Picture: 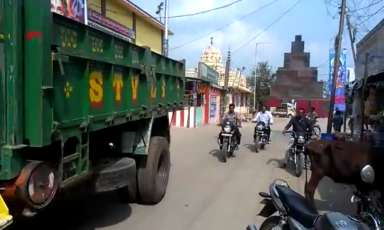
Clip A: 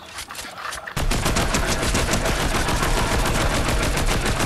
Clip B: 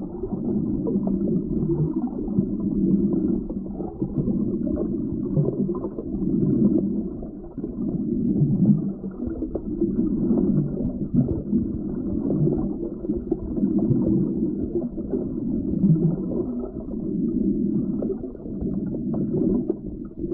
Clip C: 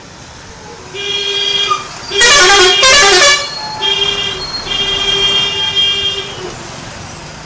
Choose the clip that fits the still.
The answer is C